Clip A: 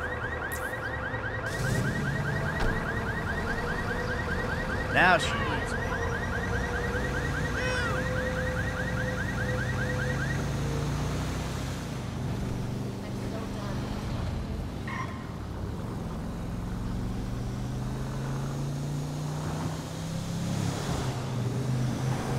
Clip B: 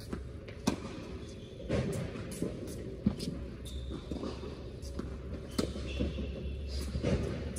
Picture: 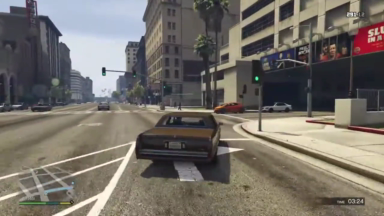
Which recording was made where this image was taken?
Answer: A